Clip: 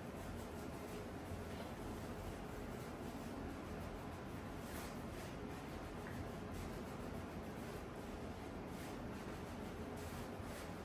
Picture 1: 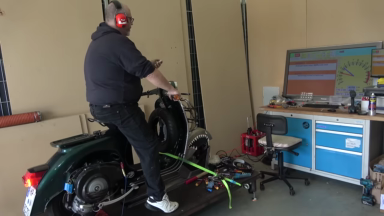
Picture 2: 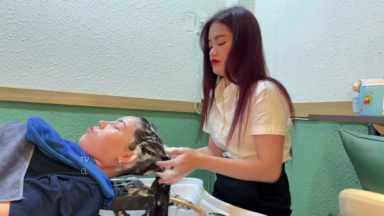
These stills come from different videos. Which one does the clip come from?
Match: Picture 2